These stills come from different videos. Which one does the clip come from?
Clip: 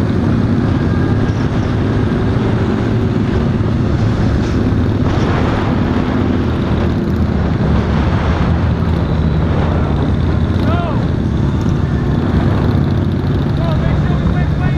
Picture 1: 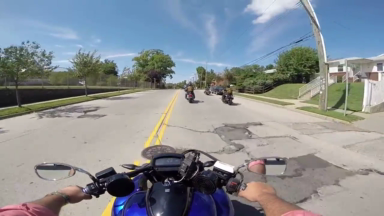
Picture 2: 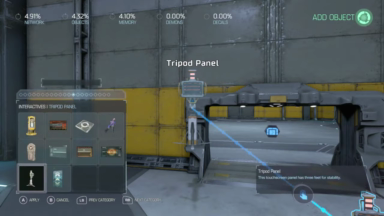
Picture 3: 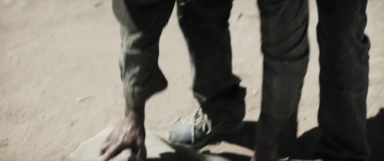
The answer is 1